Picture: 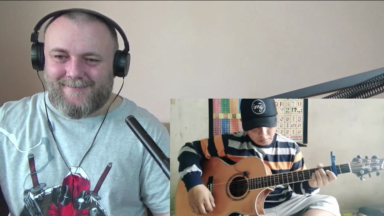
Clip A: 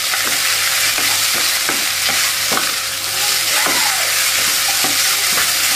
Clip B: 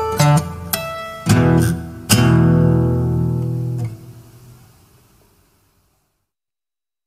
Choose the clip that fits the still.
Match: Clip B